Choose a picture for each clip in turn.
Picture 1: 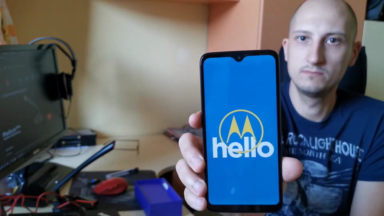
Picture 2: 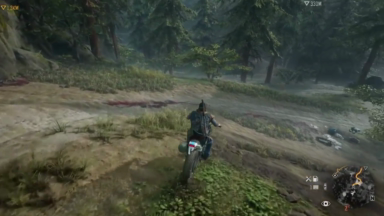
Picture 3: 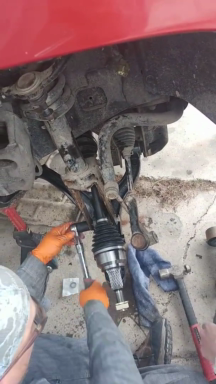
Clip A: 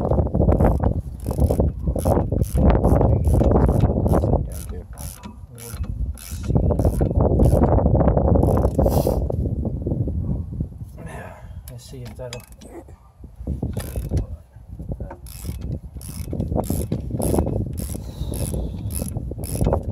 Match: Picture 3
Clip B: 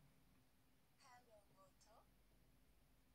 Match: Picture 1